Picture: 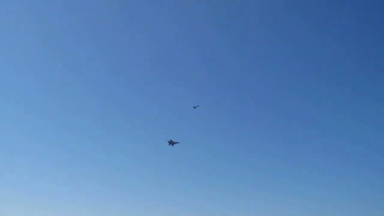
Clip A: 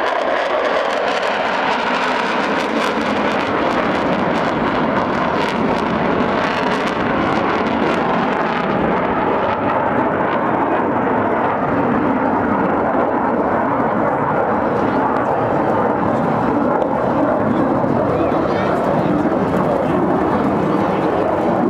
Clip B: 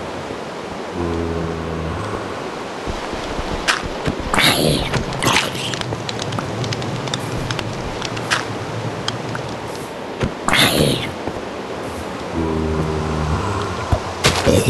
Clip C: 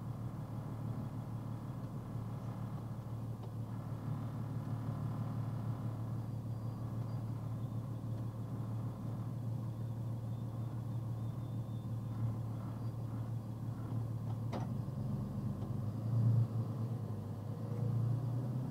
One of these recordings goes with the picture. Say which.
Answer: A